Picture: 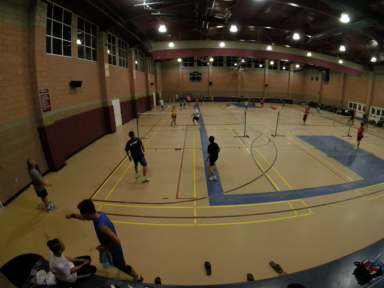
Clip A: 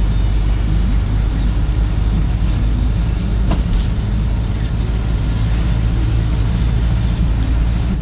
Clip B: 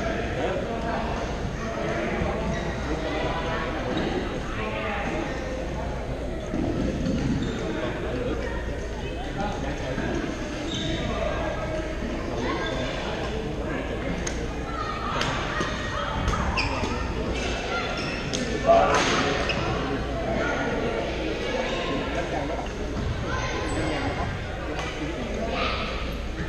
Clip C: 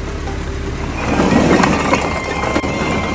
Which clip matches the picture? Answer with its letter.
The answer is B